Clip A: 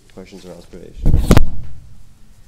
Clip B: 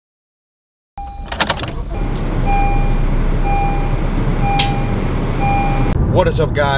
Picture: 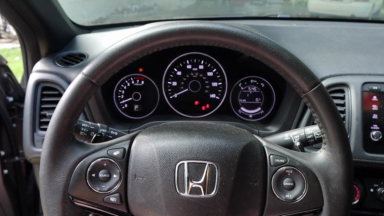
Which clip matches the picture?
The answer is B